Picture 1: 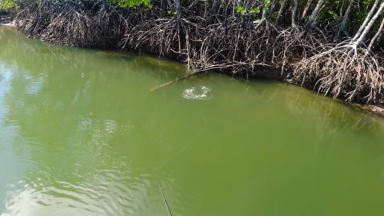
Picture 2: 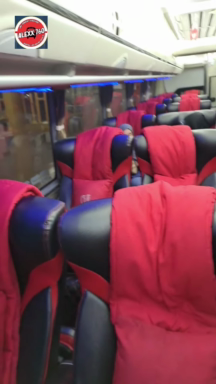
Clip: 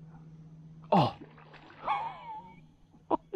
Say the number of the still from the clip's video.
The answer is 1